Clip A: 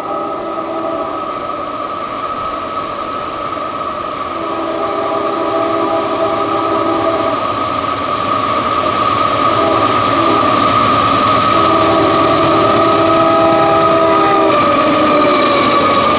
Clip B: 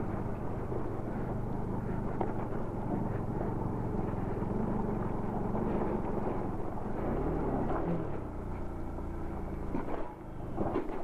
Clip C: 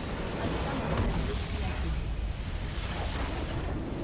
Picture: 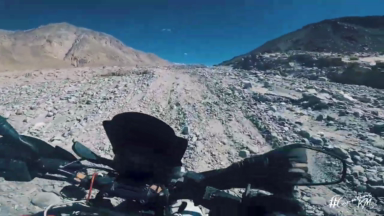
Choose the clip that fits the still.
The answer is B